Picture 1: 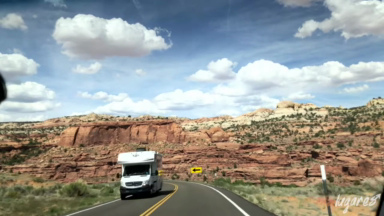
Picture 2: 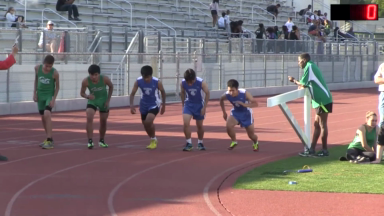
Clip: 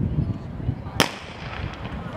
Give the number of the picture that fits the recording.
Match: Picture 2